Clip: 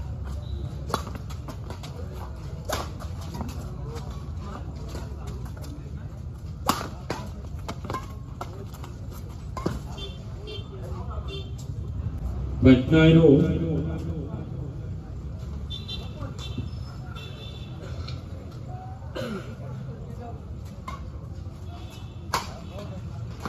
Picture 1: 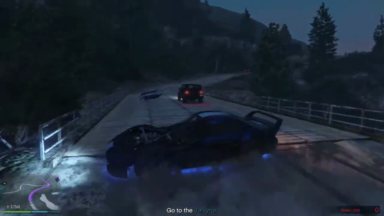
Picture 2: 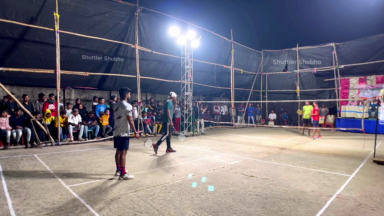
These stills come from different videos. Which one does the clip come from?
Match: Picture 2